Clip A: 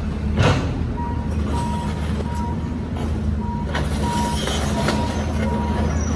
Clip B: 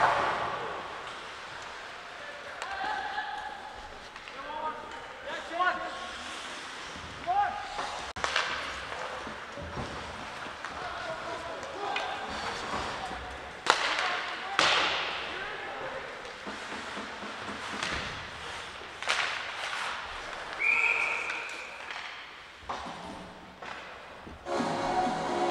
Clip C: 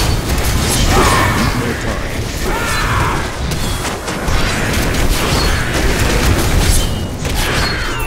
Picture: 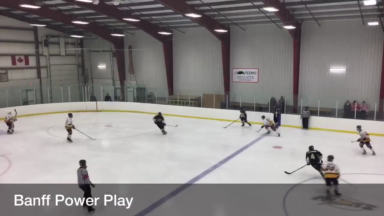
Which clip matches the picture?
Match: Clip B